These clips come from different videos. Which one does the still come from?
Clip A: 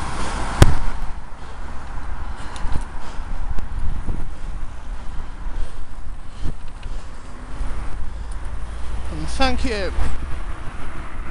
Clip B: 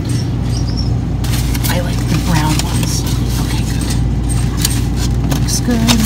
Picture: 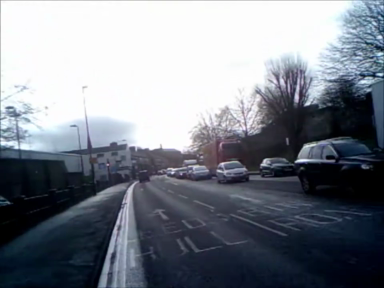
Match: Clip A